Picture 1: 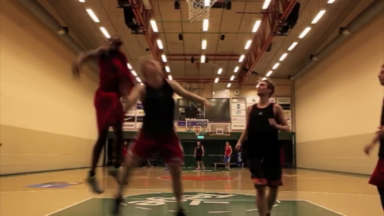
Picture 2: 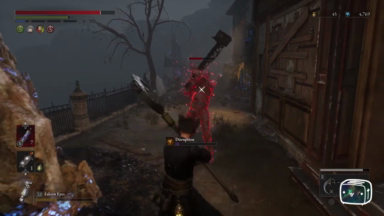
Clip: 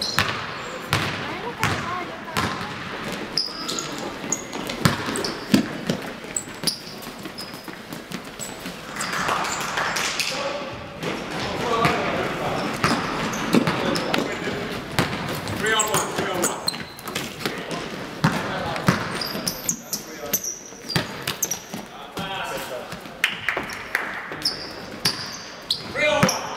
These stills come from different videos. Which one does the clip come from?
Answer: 1